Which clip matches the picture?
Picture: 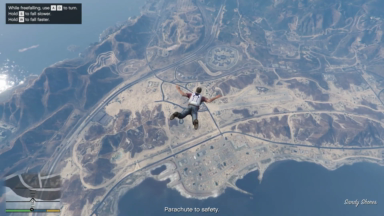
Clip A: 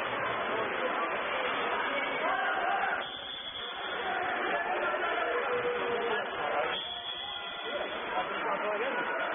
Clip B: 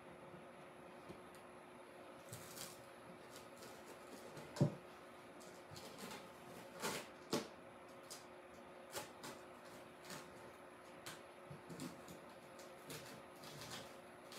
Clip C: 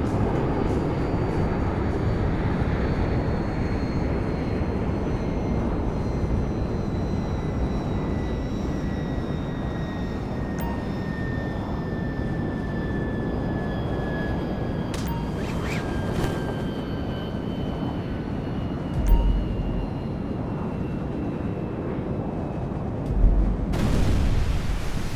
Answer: C